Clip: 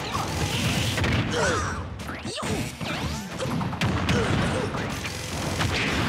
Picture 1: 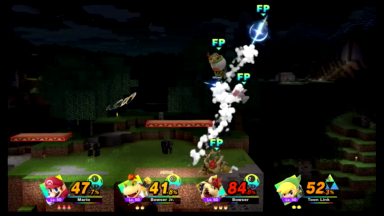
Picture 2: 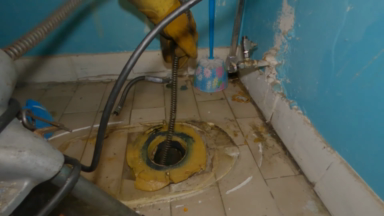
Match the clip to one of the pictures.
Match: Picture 1